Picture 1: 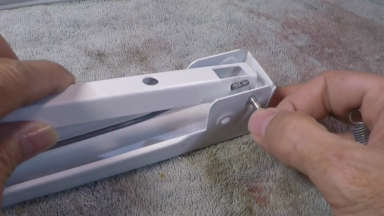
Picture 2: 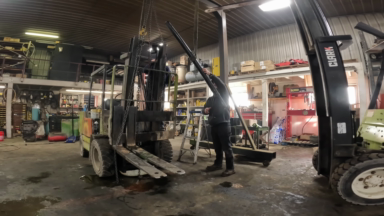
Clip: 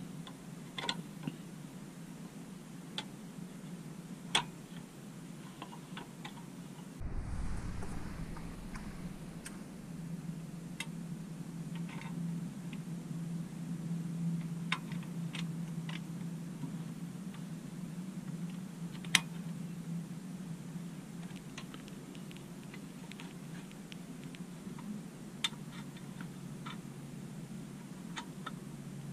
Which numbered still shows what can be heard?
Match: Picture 1